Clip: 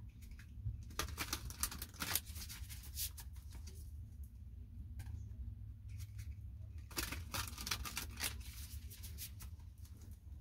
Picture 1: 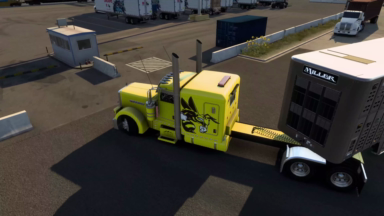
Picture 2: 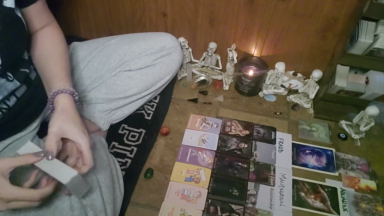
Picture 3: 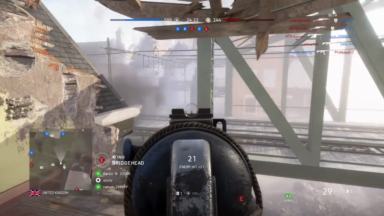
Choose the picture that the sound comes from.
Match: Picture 2